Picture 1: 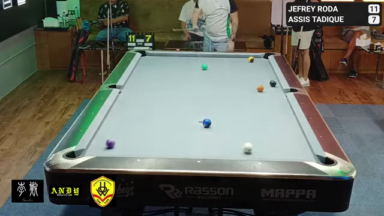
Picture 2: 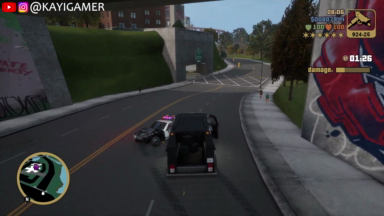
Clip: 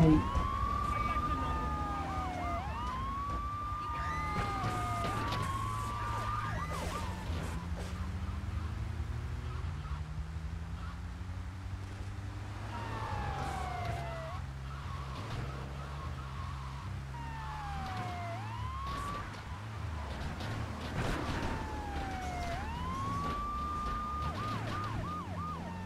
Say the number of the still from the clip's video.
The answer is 2